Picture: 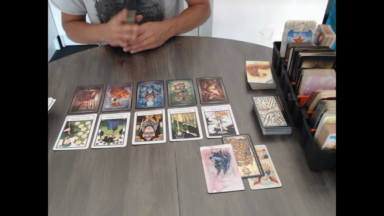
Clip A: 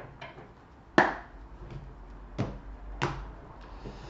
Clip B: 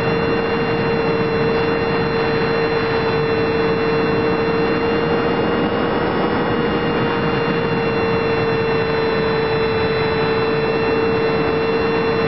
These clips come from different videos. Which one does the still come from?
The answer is A